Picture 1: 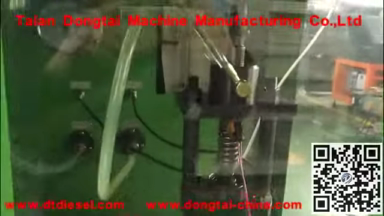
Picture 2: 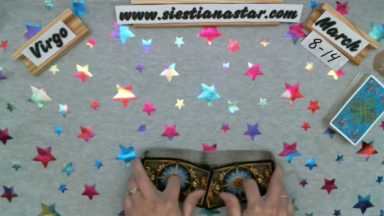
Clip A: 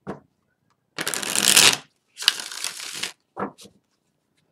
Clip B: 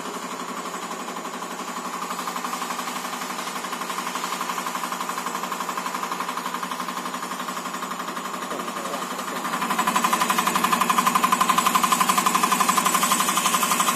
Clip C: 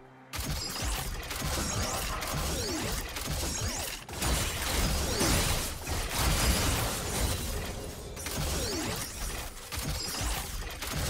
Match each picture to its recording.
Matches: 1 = B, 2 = A